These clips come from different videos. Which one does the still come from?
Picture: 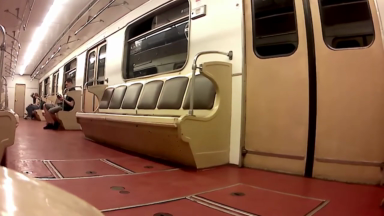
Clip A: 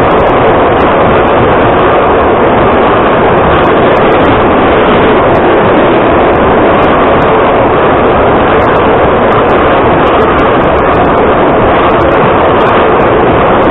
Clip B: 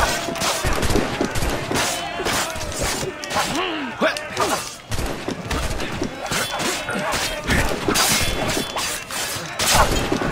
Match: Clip A